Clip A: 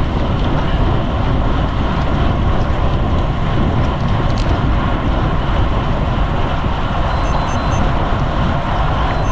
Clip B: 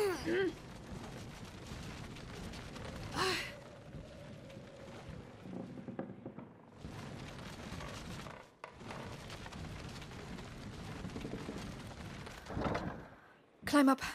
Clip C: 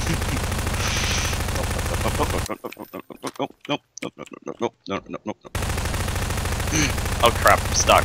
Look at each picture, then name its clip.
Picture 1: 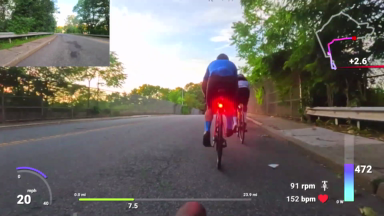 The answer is A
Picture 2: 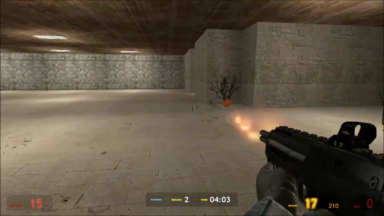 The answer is C